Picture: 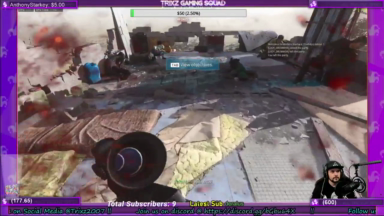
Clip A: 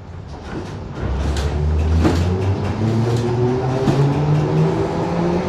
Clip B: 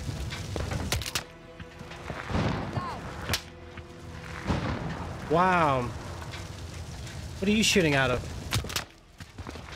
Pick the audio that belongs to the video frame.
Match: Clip B